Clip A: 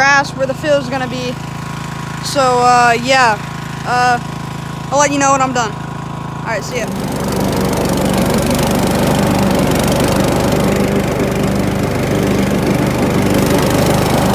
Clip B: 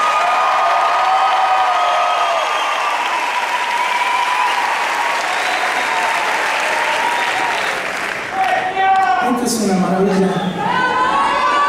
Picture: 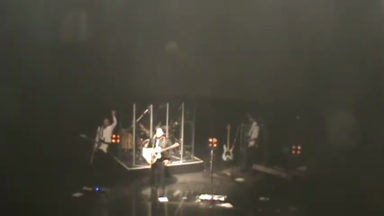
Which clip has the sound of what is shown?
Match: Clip B